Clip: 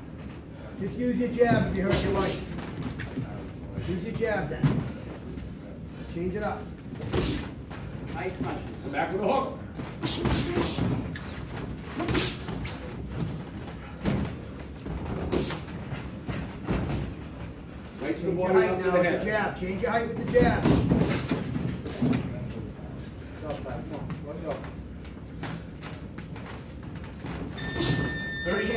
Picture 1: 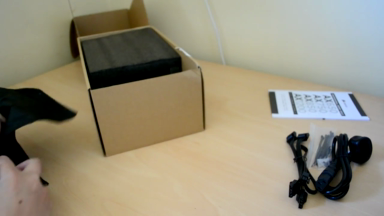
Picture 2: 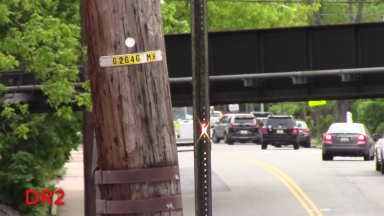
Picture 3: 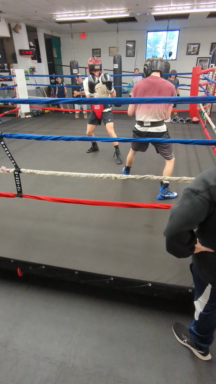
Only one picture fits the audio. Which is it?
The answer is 3